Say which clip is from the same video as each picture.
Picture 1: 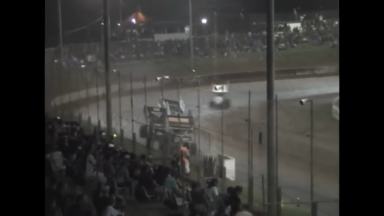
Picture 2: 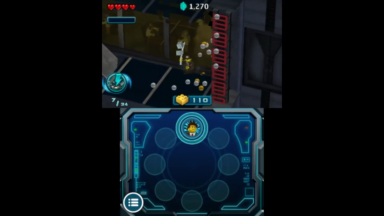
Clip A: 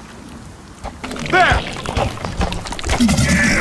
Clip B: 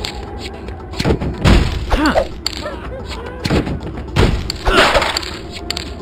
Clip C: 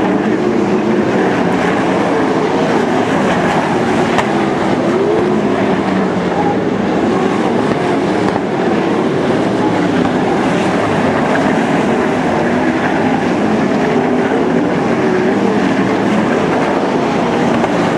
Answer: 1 C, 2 B